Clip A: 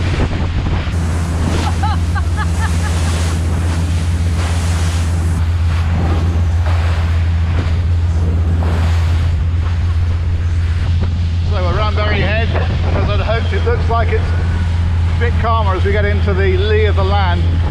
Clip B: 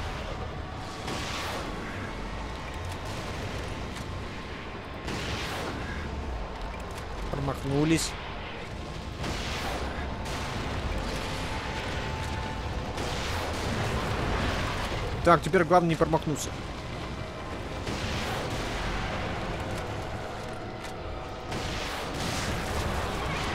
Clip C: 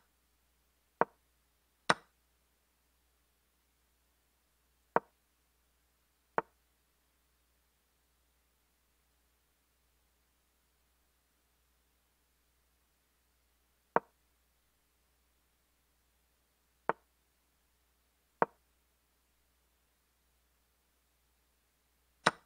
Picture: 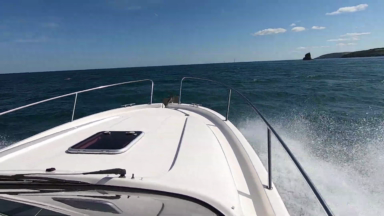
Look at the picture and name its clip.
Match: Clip A